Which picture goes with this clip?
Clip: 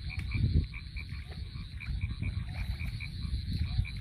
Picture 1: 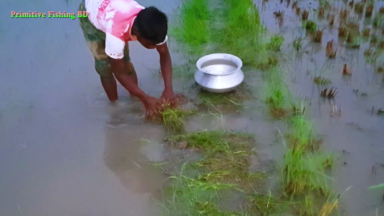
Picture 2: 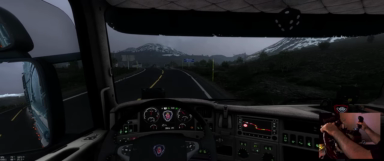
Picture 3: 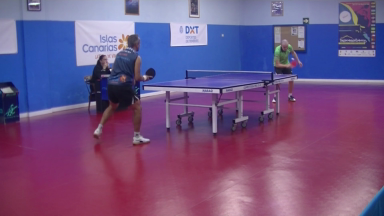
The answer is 1